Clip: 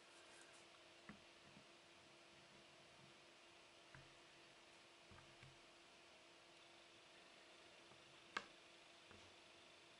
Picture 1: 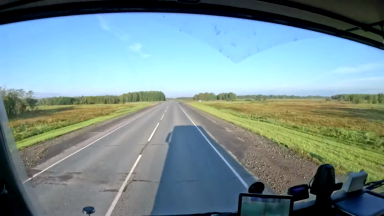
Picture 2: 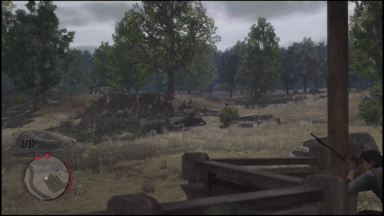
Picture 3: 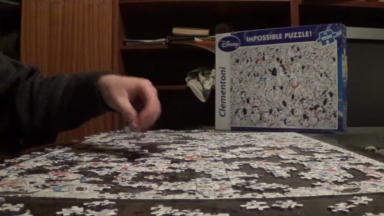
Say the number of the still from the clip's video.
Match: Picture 3